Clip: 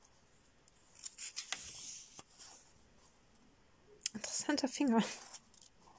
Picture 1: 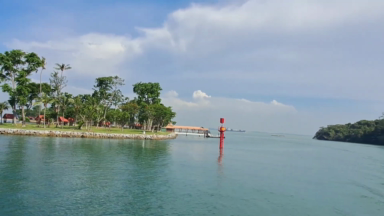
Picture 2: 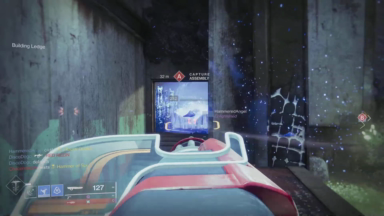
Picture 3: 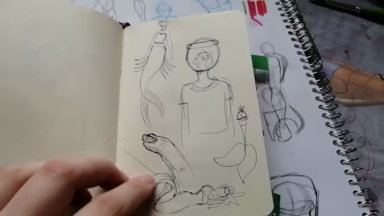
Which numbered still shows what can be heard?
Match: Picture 3